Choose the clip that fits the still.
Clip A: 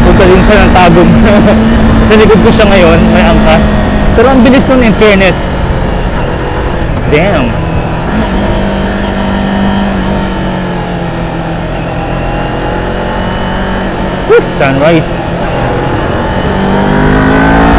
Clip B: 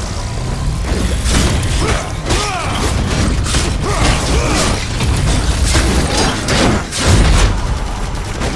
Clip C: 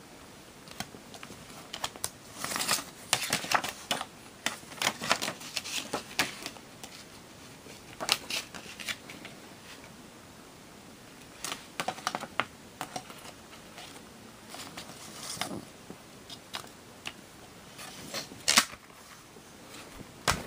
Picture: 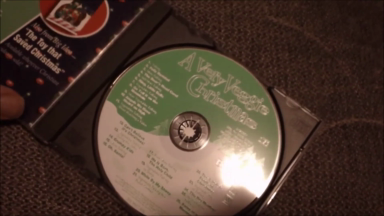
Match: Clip C